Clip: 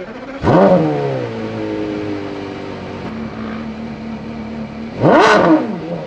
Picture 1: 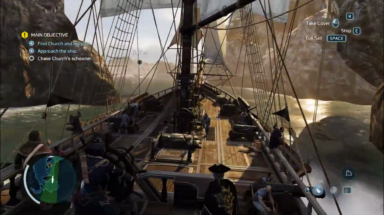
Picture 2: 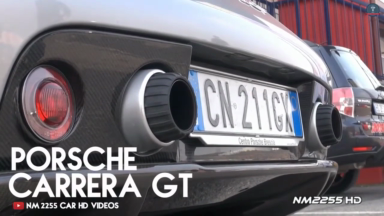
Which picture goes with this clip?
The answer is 2